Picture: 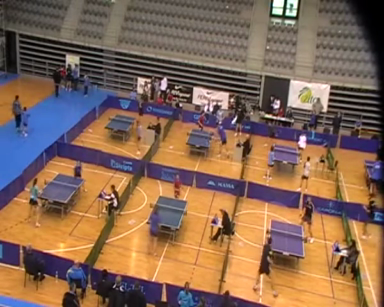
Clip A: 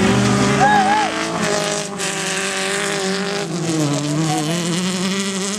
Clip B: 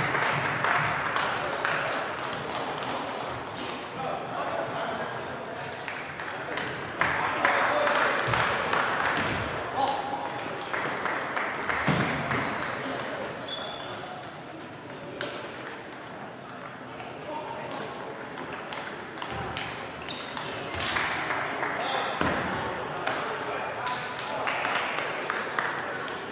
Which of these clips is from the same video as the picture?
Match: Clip B